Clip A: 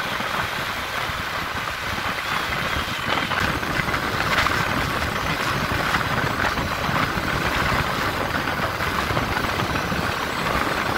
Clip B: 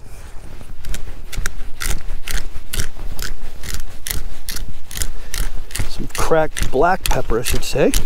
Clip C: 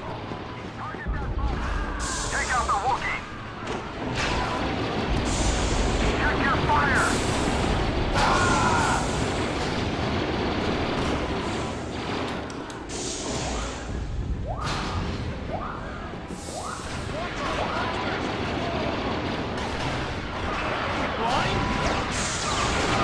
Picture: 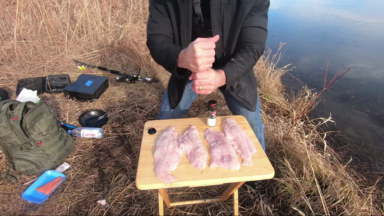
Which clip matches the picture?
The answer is B